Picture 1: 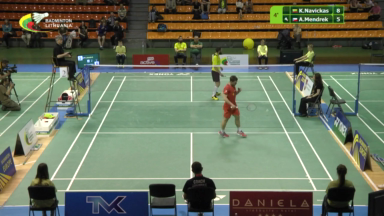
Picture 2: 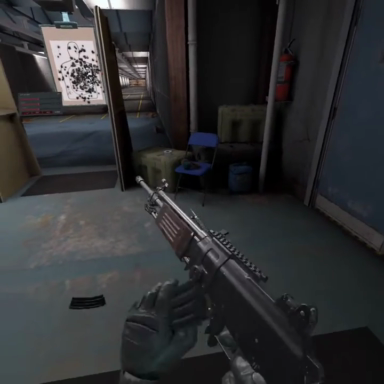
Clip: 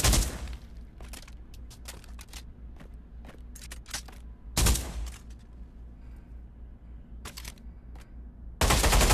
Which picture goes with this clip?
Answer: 2